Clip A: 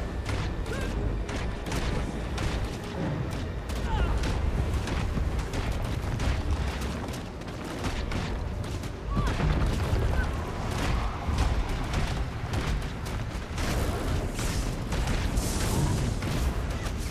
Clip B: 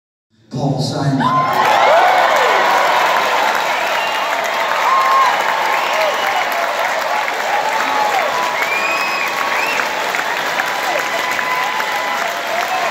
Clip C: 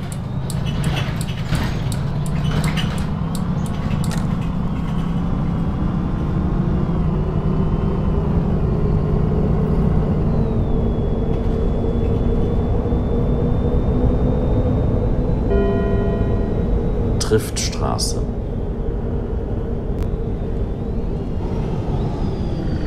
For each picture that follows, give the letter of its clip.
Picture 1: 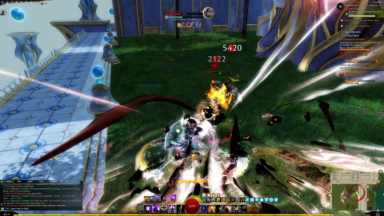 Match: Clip A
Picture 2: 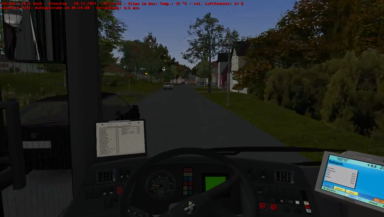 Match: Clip C